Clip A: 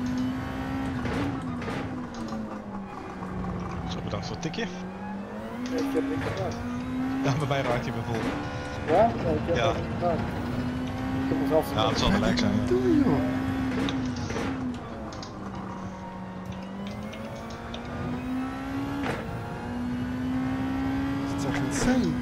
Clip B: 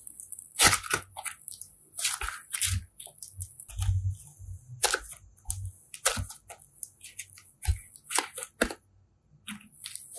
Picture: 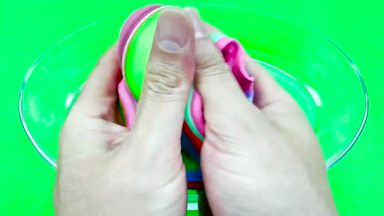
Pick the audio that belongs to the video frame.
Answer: B